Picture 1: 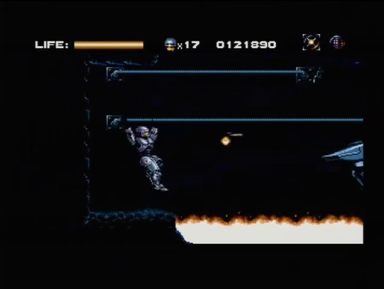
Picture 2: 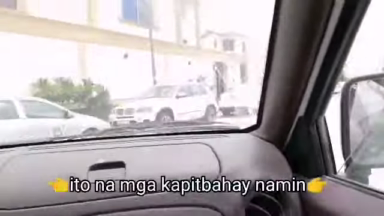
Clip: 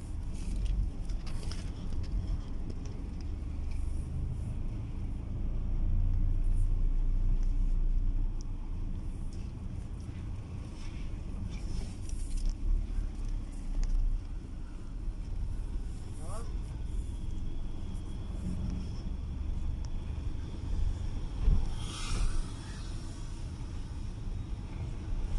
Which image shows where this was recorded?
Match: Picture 2